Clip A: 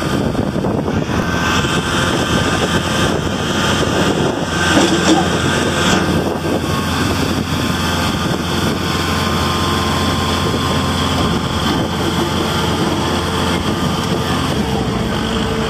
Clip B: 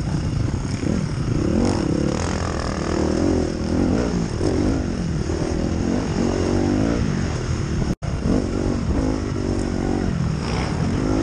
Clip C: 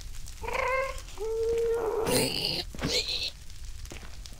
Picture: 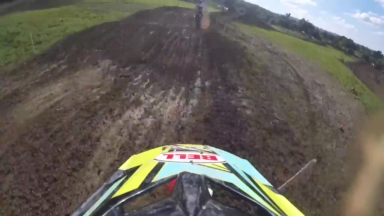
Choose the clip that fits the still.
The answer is B